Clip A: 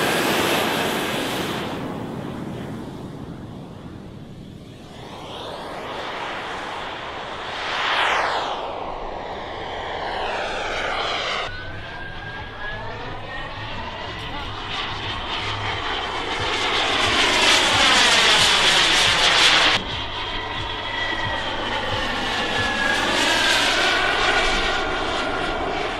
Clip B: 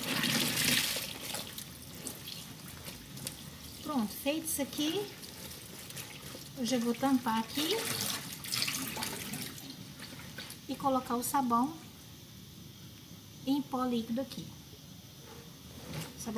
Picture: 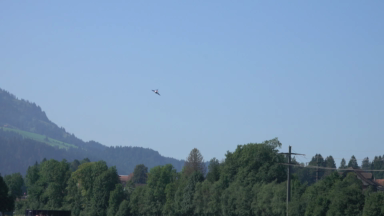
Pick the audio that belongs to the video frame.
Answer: A